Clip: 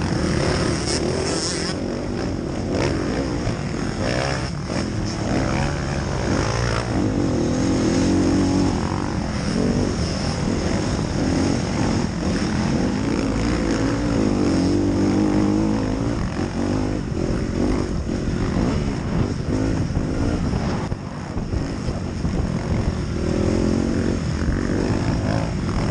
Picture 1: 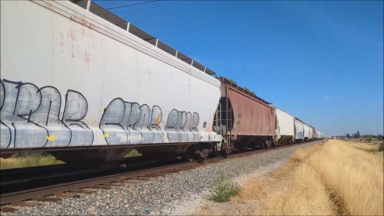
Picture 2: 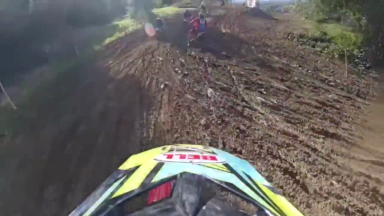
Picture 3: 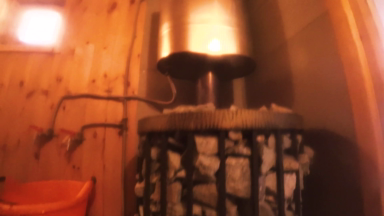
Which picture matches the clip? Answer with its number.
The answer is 2